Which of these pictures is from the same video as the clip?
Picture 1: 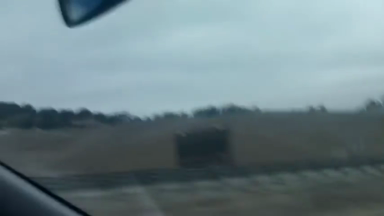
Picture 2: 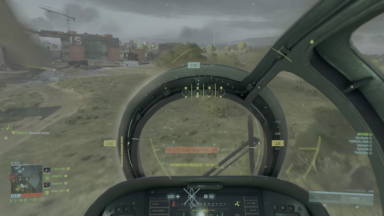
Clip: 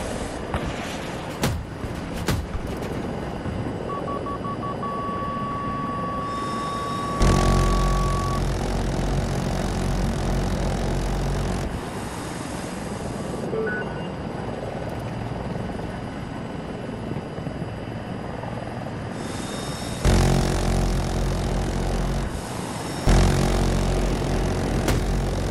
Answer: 2